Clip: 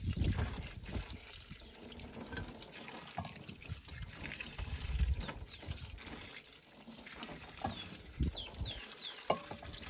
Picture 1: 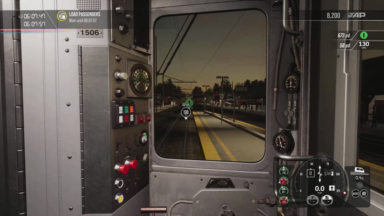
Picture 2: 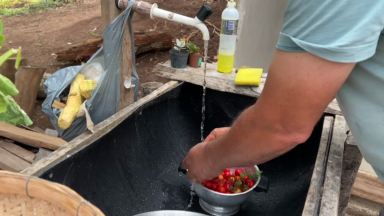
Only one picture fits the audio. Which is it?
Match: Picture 2